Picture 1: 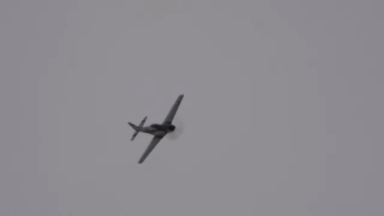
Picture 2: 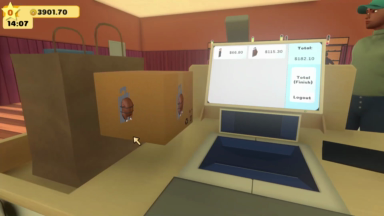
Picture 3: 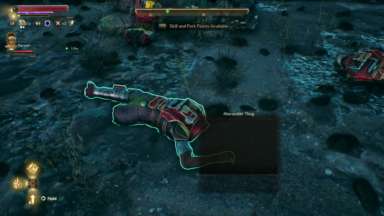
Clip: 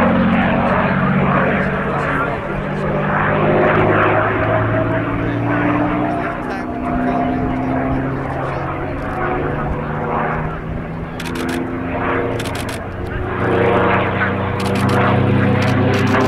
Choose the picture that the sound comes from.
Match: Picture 1